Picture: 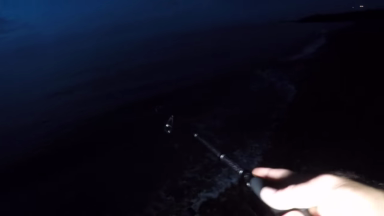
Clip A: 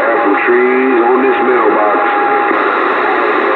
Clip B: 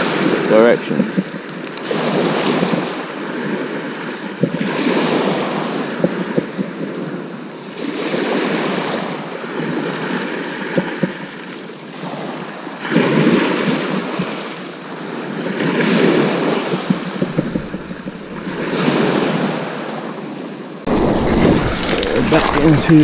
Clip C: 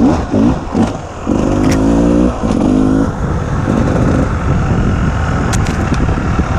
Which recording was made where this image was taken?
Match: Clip B